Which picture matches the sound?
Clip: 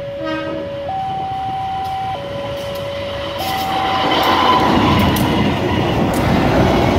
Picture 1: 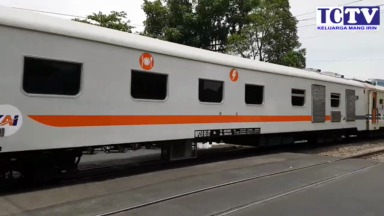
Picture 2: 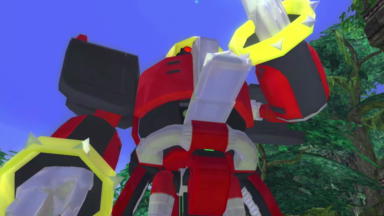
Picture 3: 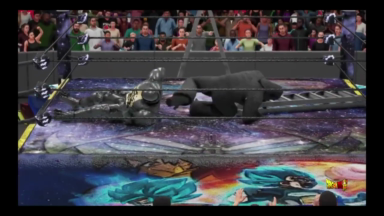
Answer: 1